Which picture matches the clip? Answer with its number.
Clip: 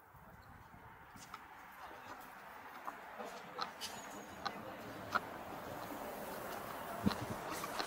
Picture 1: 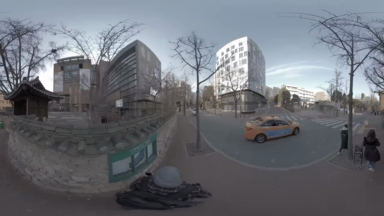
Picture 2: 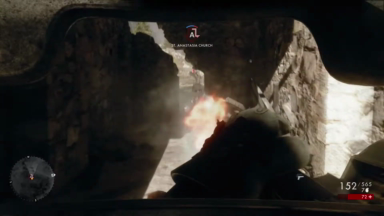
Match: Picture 1